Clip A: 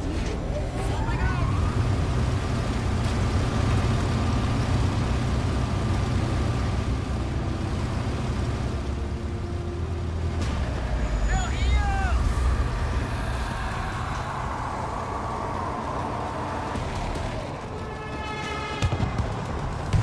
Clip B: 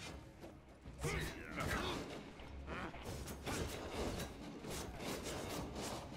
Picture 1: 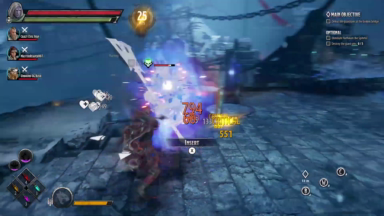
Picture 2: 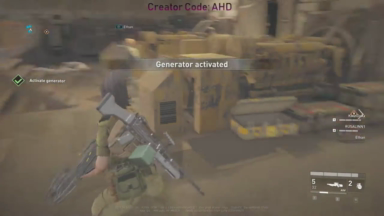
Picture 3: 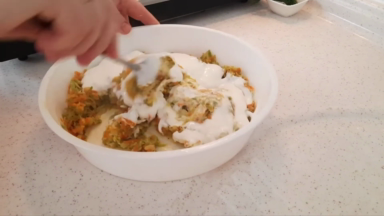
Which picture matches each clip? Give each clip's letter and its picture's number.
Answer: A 2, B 1